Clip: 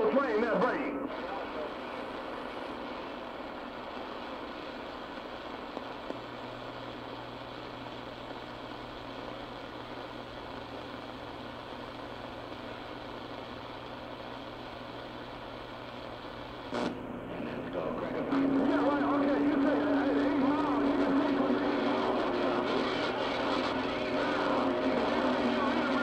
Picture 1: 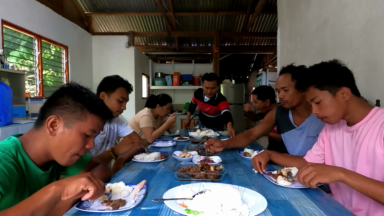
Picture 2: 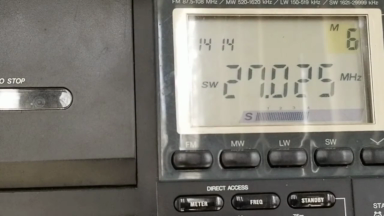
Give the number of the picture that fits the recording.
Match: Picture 2